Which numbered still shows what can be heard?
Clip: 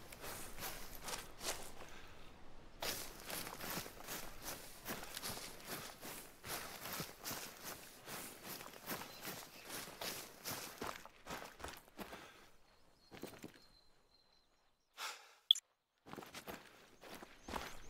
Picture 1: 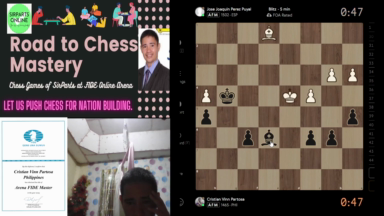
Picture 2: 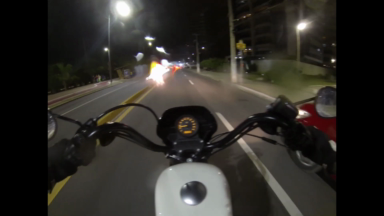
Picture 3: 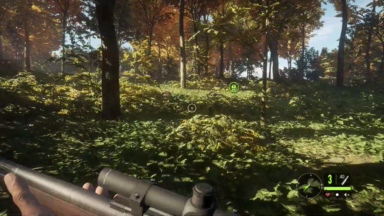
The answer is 3